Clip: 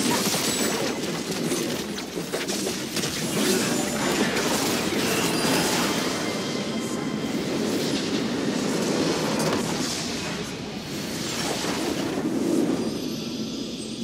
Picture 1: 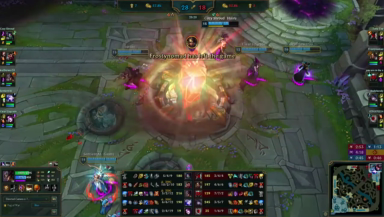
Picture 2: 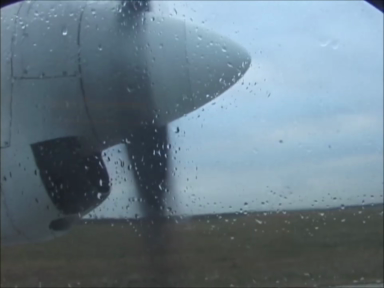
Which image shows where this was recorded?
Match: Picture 1